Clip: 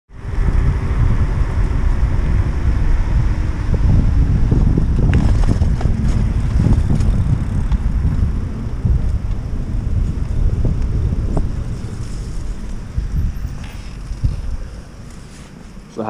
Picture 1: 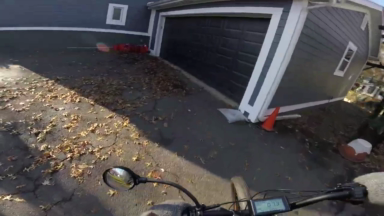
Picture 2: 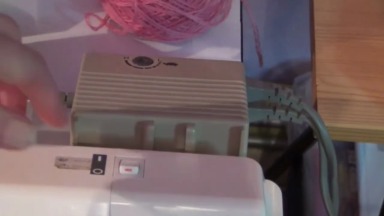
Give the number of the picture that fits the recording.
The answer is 1